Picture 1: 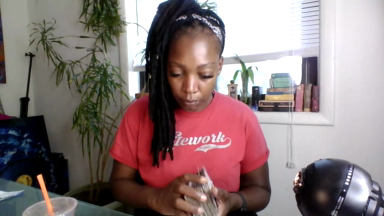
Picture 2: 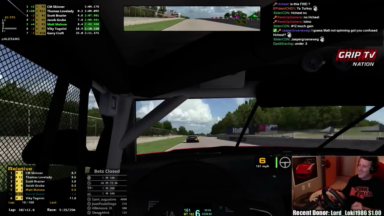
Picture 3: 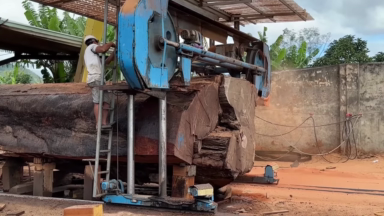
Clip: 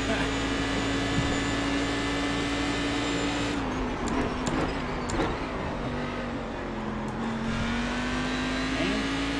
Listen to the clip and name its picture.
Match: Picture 2